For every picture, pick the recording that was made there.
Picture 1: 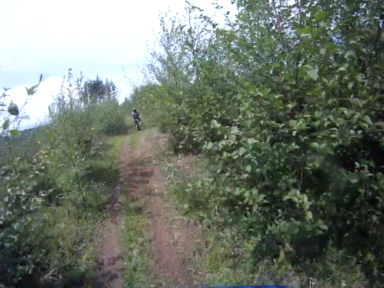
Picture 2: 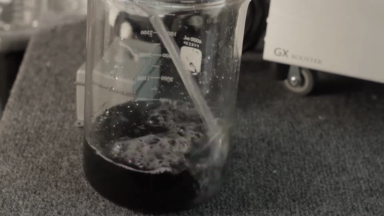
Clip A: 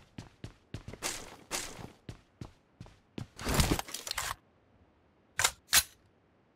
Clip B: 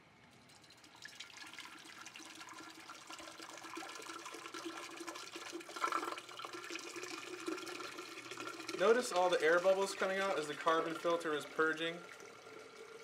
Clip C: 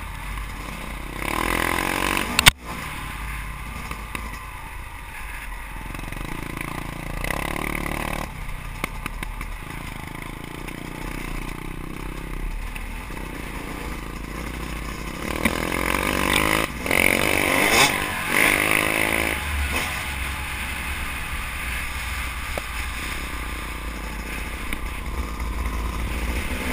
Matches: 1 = C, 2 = B